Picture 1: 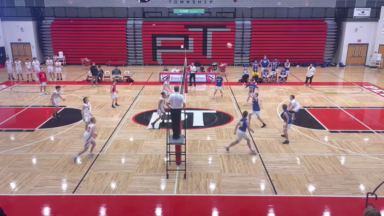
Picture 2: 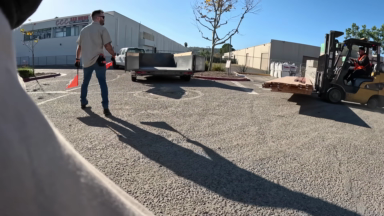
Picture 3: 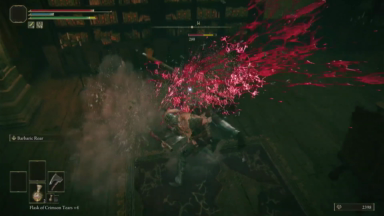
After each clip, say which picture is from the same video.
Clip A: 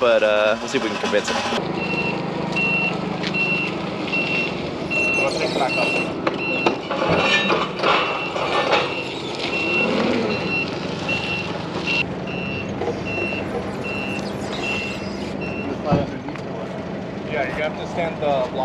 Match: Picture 2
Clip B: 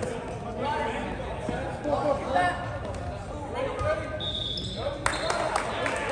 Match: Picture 1